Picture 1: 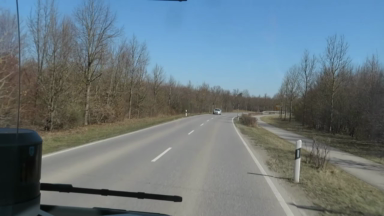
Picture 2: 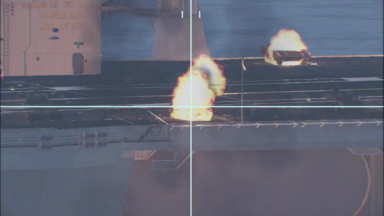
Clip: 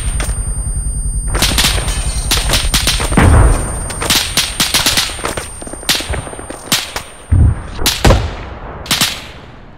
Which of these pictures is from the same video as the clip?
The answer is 2